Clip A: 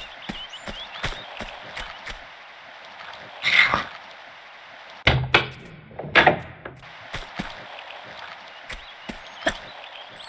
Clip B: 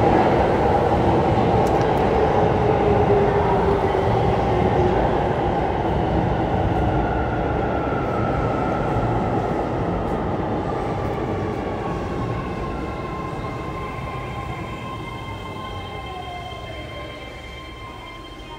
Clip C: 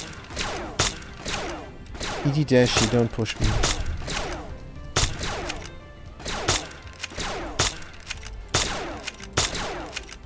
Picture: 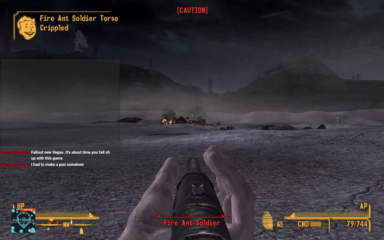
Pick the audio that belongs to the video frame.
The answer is C